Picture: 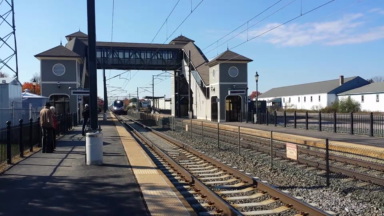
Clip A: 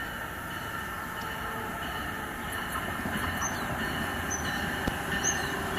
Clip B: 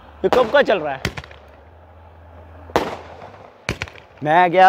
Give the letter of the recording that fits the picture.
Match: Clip A